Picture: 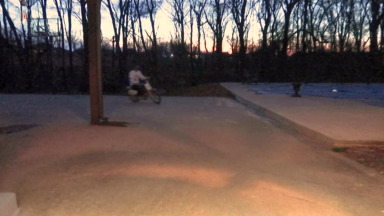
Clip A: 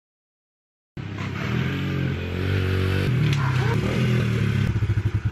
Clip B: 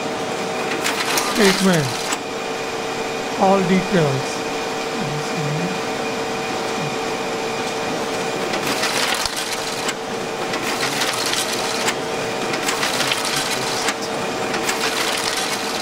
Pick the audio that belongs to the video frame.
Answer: A